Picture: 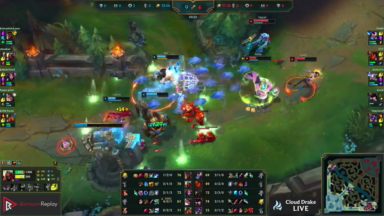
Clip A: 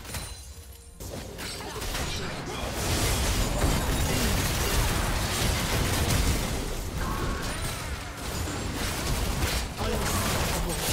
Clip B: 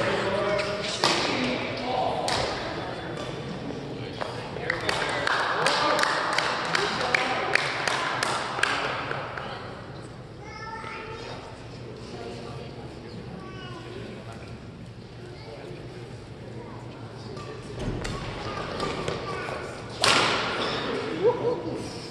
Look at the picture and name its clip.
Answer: A